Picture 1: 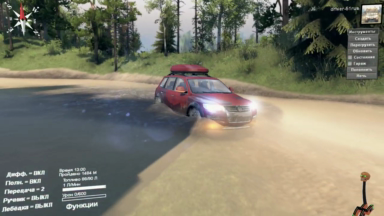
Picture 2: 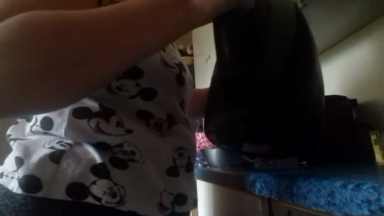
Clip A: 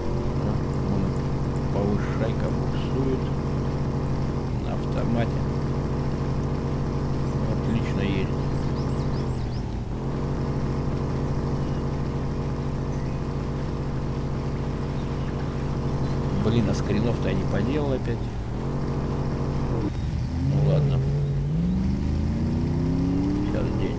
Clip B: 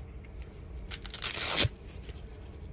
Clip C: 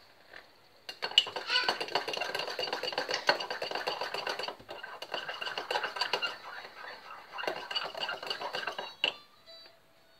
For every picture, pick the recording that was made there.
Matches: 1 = A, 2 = C